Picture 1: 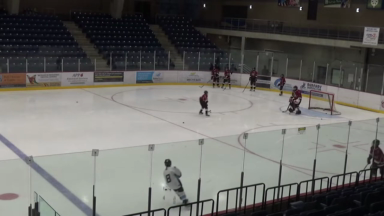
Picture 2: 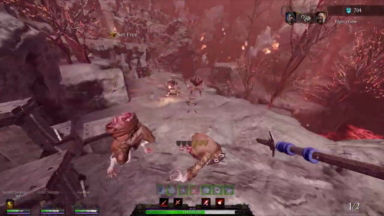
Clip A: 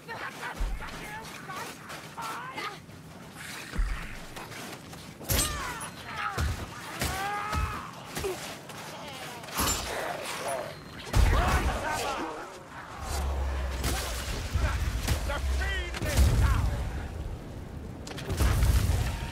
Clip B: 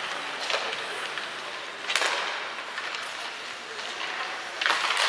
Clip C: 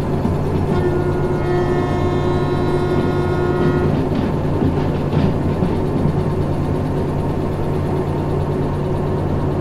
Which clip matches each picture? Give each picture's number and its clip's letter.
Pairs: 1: B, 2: A